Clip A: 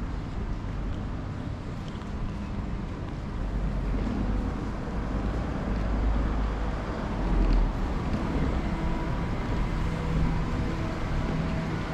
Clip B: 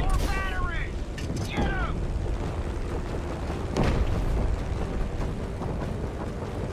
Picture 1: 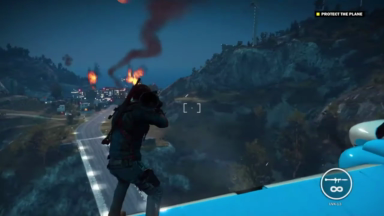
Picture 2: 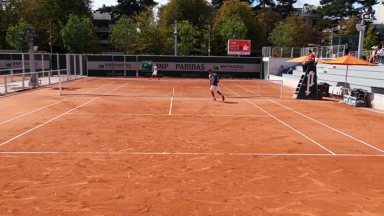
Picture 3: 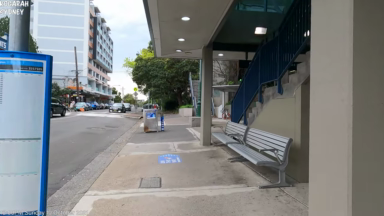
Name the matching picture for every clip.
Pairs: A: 3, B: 1